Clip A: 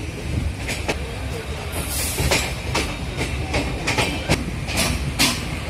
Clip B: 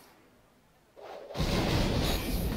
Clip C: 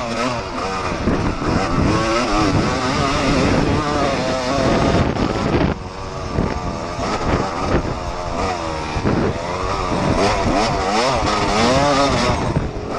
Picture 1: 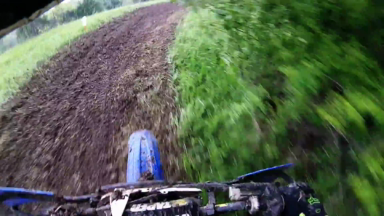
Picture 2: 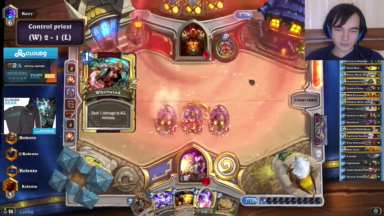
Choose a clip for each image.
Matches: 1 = C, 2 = B